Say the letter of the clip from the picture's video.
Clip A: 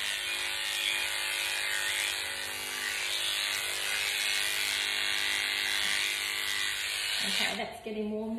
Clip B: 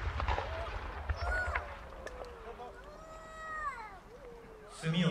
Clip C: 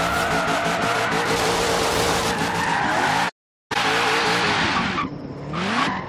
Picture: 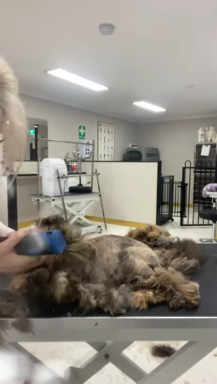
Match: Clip A